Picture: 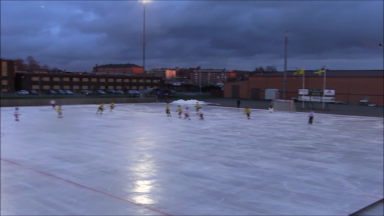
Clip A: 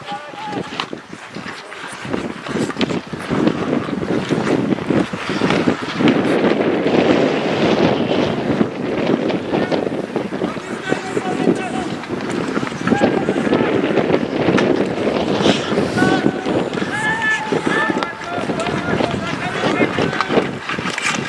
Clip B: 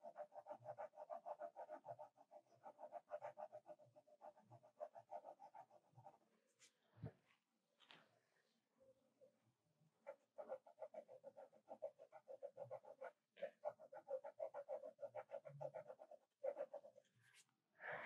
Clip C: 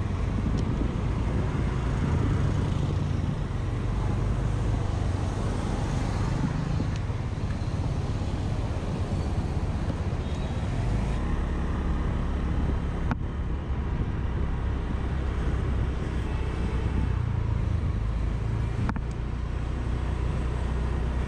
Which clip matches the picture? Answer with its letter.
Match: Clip A